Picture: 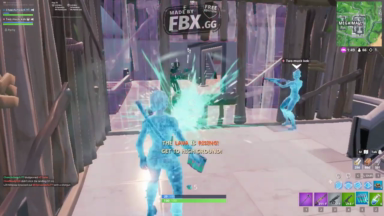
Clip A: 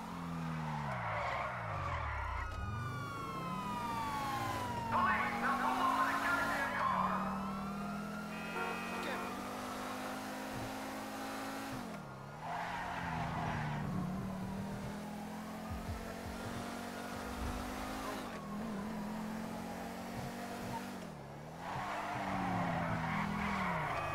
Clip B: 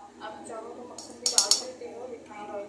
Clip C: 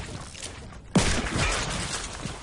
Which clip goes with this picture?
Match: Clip C